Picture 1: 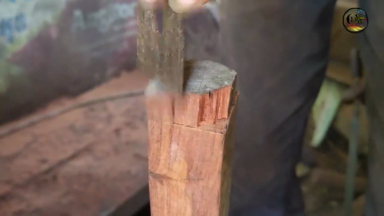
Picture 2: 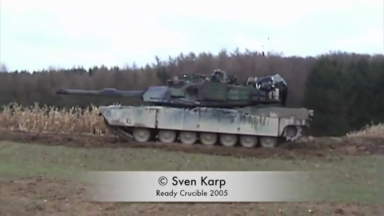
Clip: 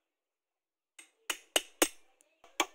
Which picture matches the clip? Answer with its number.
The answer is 1